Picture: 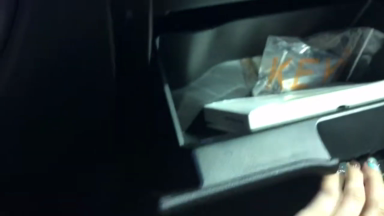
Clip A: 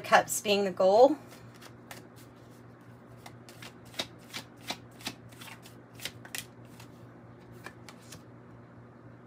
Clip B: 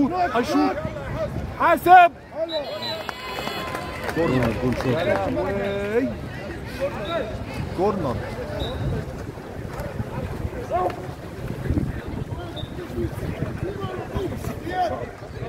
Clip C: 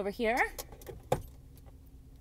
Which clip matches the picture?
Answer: C